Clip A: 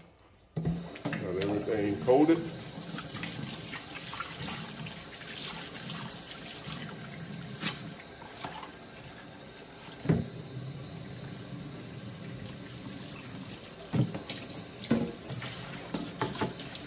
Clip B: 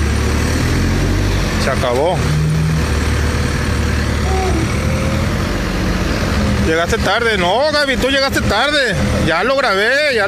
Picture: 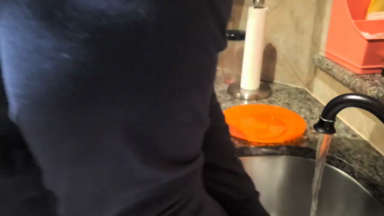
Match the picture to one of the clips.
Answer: A